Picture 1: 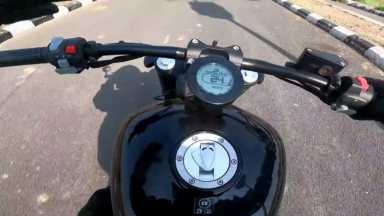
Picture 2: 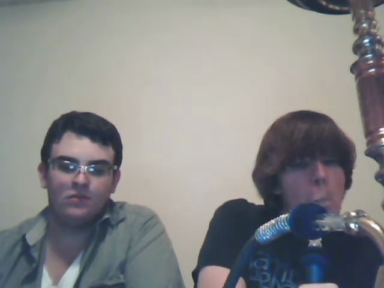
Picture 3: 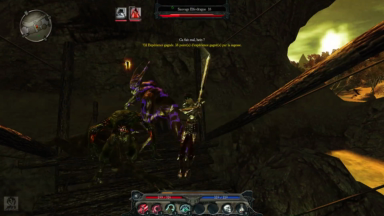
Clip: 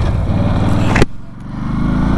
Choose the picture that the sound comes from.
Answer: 1